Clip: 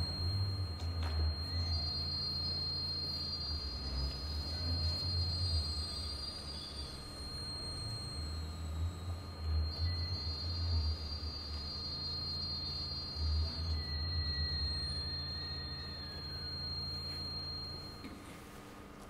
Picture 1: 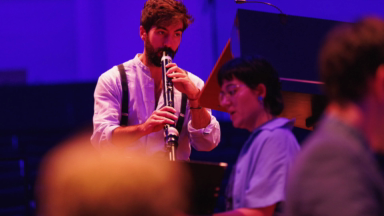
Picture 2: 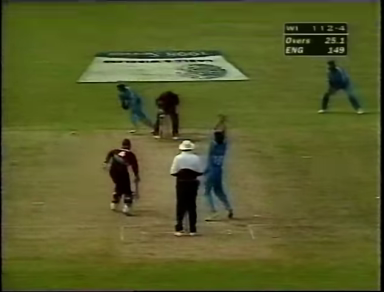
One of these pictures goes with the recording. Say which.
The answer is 1